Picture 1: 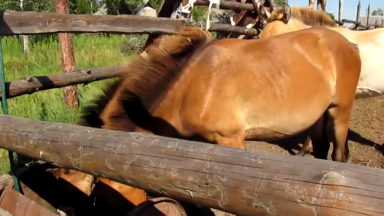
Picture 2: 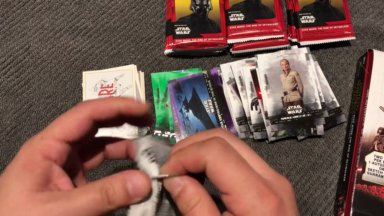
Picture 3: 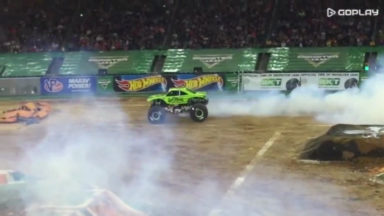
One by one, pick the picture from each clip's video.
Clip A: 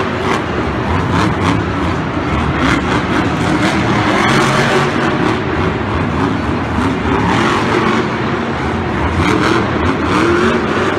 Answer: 3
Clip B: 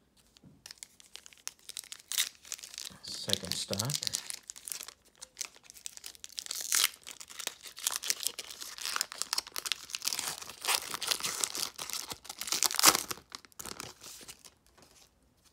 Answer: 2